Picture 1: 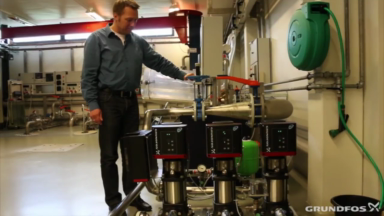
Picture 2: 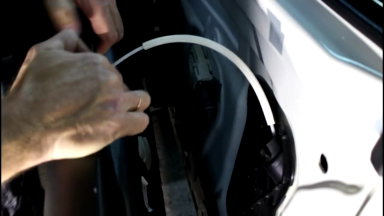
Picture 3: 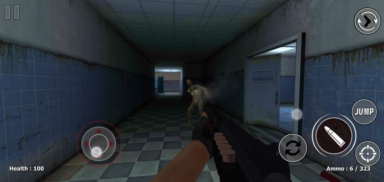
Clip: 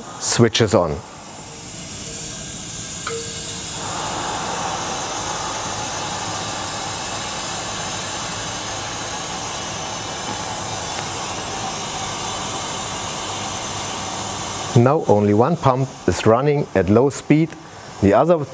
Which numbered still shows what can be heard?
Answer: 1